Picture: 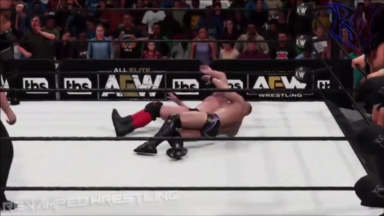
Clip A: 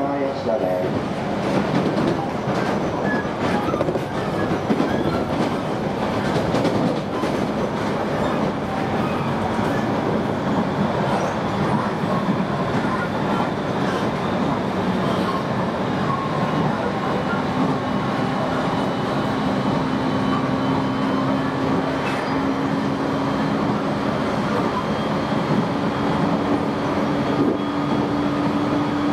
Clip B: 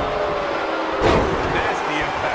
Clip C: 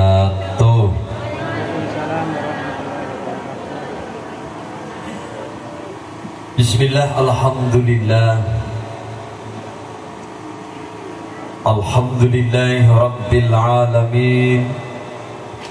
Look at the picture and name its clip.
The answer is B